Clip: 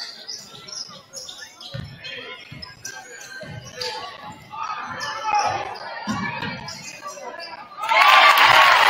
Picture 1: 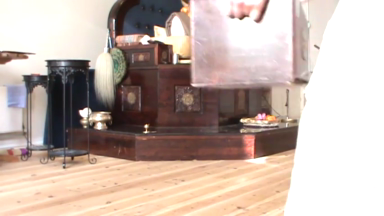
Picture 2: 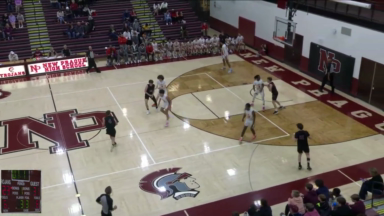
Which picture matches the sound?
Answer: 2